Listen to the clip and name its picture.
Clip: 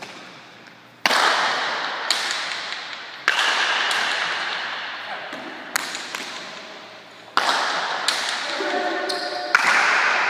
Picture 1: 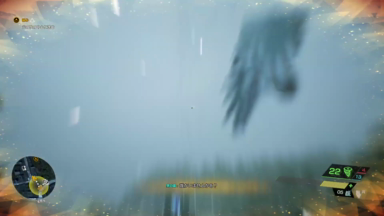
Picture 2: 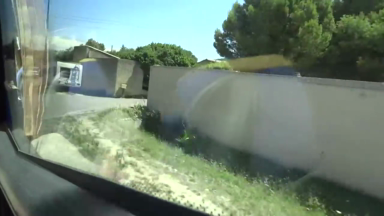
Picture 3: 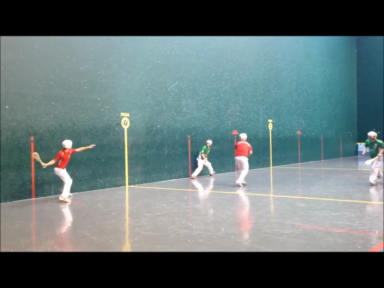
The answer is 3